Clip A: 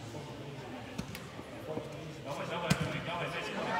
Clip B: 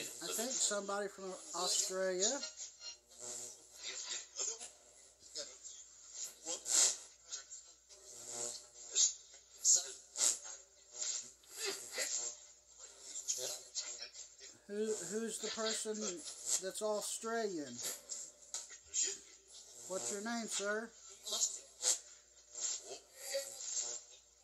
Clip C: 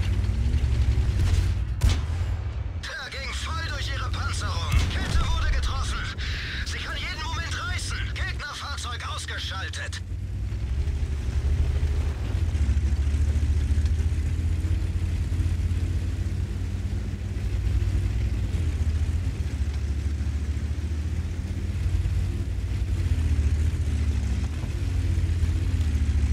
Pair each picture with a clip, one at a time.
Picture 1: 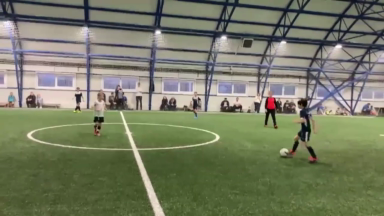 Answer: A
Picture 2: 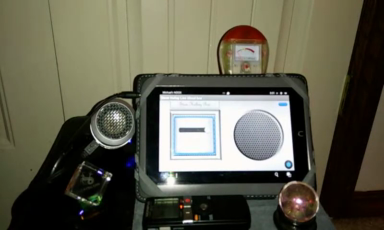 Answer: B